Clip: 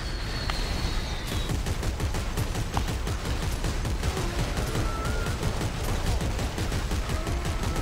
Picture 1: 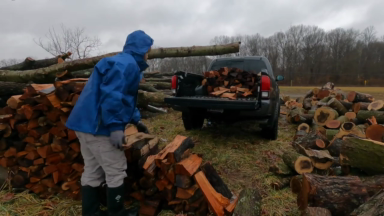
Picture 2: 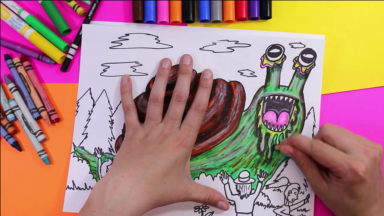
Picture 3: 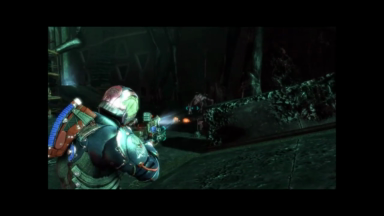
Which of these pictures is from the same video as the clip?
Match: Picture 3